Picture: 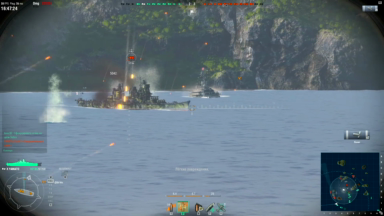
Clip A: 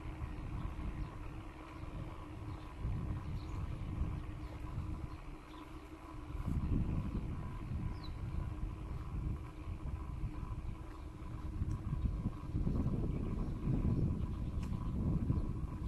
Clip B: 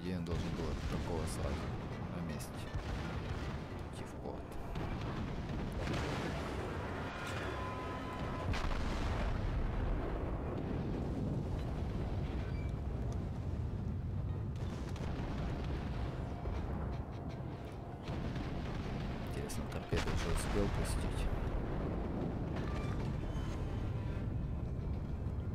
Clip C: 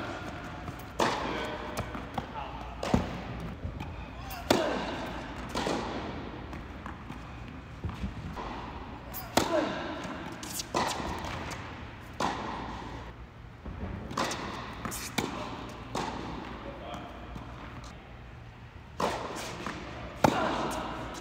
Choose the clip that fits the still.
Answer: B